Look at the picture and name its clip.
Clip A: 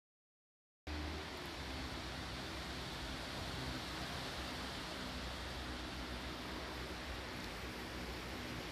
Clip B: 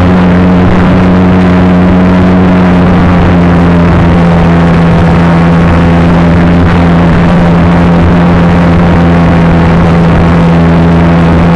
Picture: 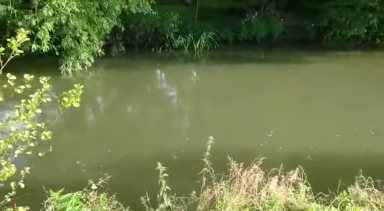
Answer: A